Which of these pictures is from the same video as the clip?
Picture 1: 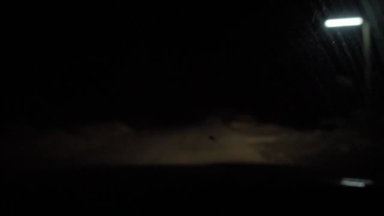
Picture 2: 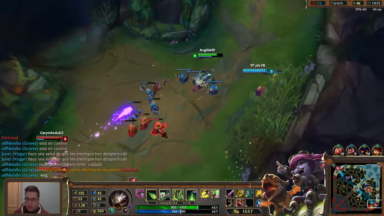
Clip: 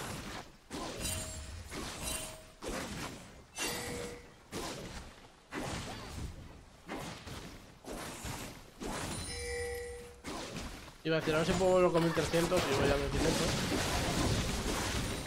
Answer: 2